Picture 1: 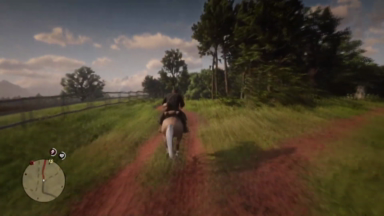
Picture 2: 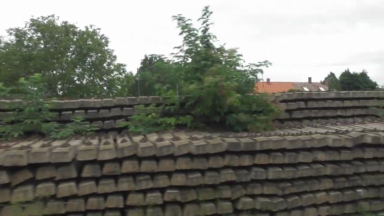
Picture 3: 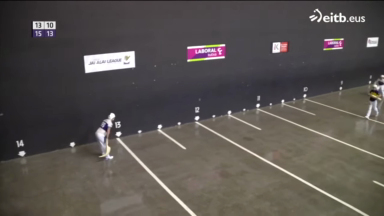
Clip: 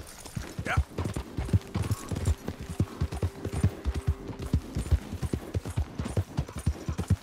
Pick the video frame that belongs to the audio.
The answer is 1